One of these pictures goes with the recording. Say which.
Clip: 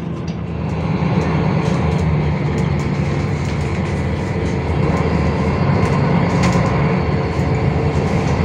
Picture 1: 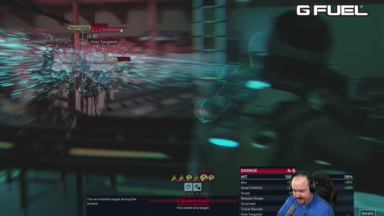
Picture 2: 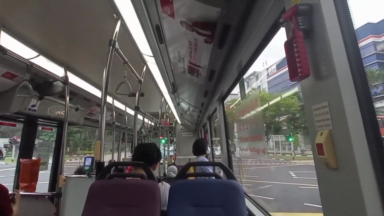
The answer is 2